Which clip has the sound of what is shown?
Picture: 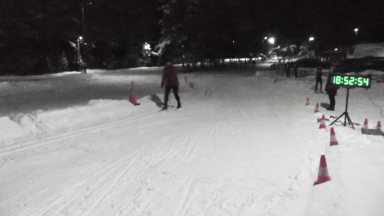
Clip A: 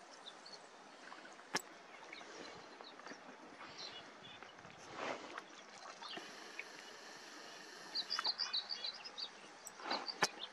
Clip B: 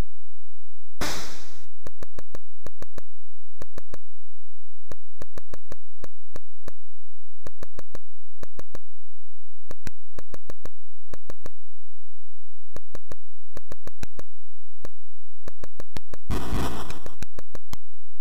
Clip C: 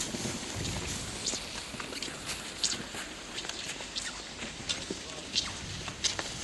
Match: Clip C